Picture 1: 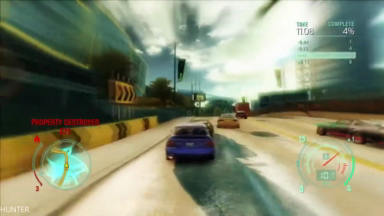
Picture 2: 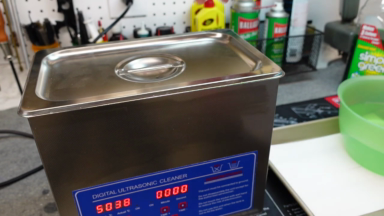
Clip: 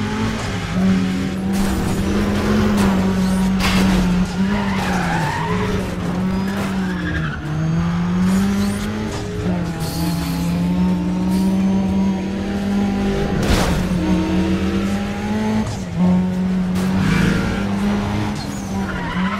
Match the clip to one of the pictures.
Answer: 1